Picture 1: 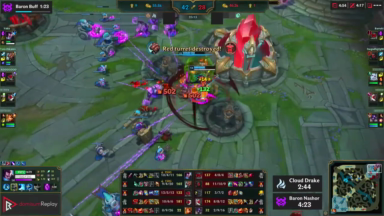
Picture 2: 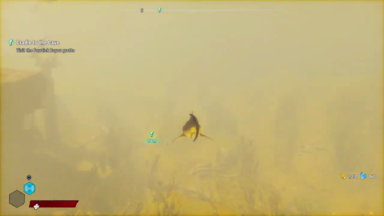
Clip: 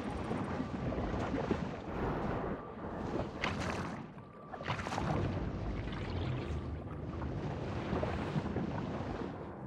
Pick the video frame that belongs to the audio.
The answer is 2